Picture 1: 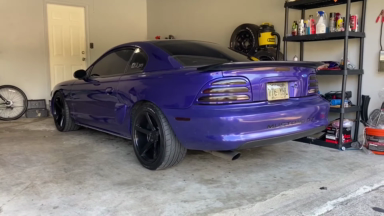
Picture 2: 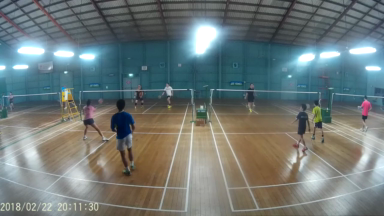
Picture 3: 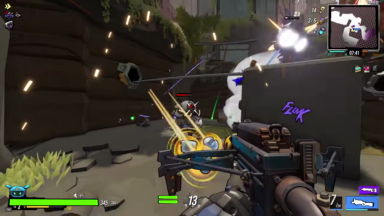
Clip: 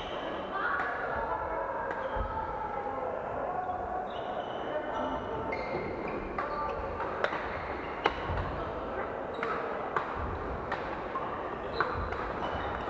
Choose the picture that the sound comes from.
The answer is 2